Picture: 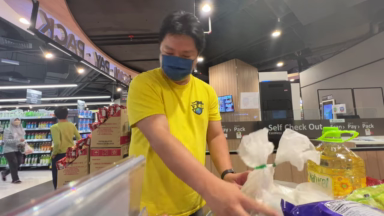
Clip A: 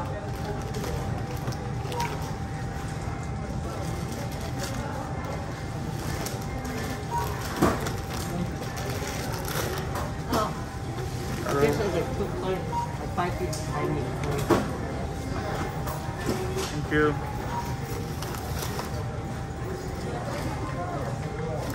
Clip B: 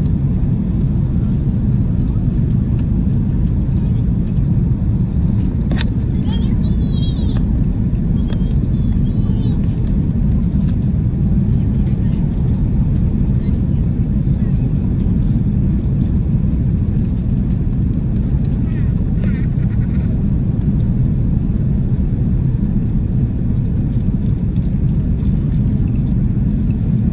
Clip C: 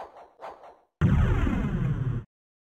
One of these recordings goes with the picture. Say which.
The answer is A